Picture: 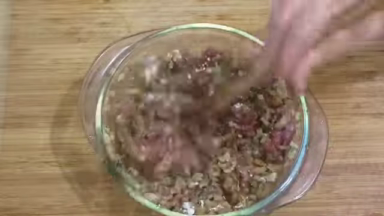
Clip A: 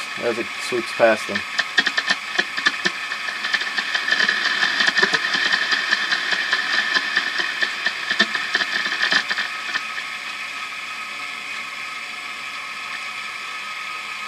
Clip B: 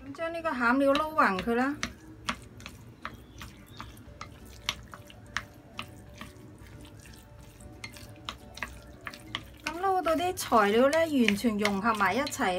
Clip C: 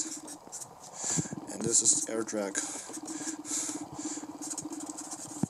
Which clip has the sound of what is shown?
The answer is B